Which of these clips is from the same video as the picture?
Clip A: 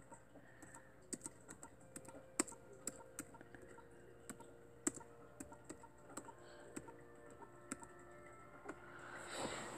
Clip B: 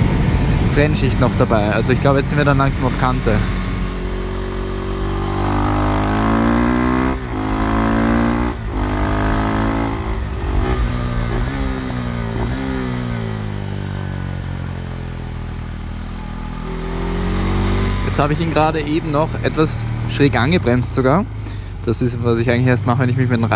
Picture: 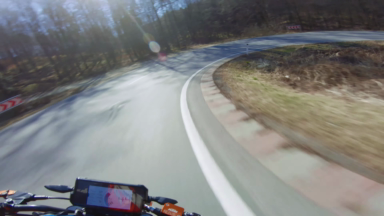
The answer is B